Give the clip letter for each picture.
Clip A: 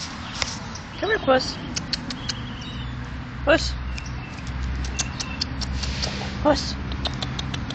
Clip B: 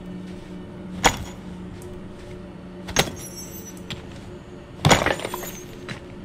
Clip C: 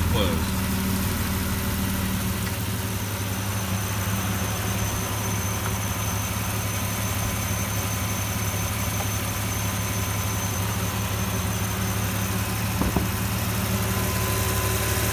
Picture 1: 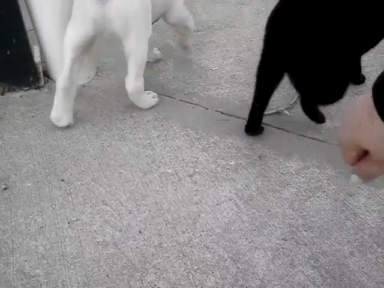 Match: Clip A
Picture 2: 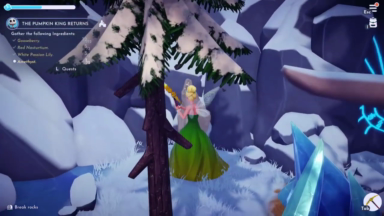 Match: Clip B